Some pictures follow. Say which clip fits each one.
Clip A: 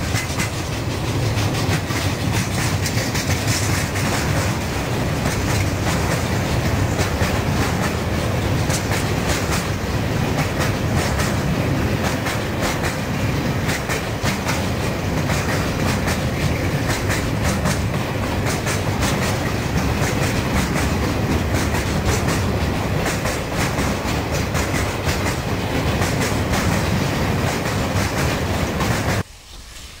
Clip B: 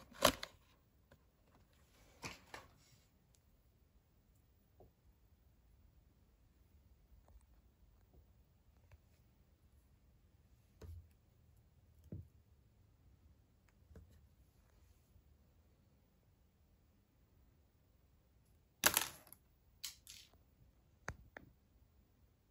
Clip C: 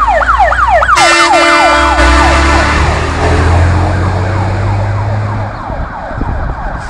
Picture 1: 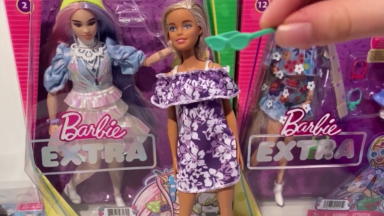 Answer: B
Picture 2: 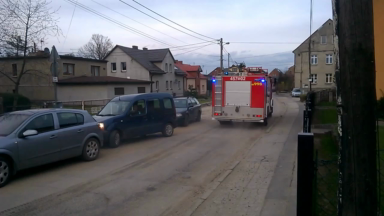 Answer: C